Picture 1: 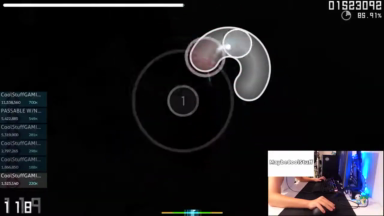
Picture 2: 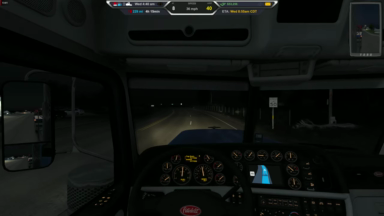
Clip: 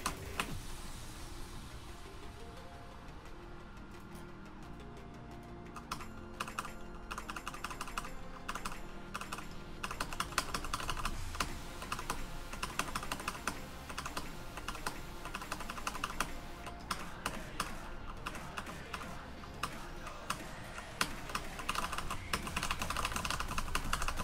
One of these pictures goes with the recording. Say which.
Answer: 1